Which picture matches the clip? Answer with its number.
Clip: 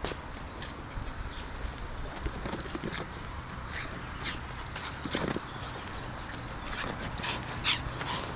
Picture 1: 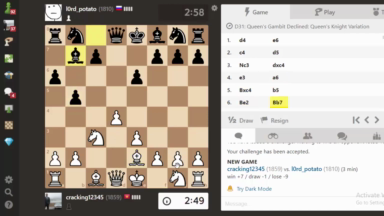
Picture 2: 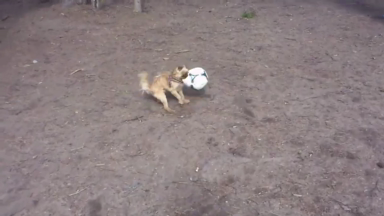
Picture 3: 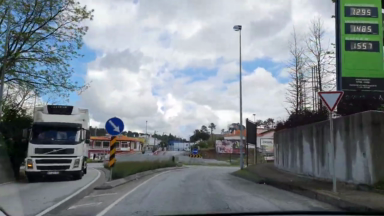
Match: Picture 2